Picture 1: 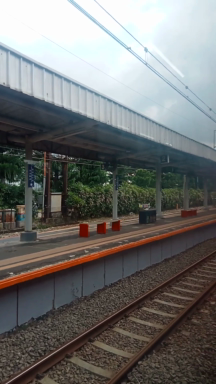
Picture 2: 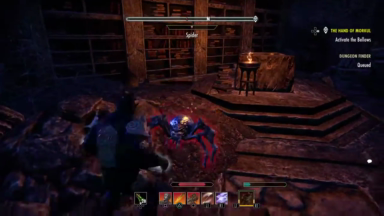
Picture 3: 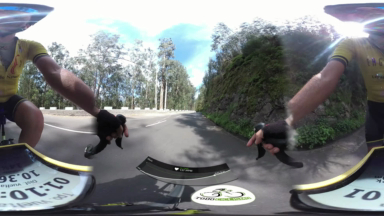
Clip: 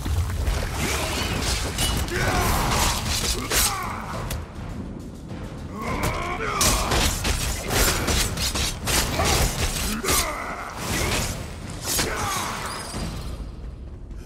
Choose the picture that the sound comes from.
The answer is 2